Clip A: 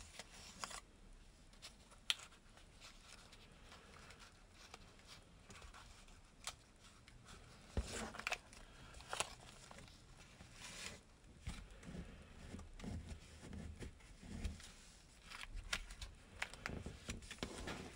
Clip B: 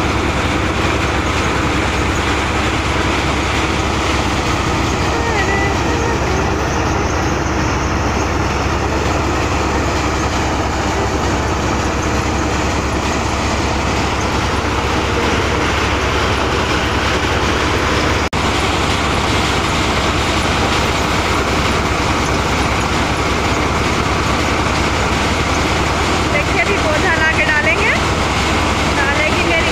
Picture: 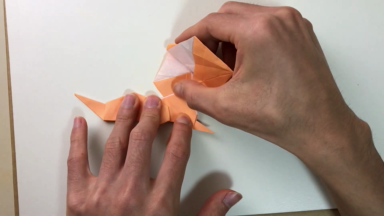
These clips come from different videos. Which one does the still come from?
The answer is A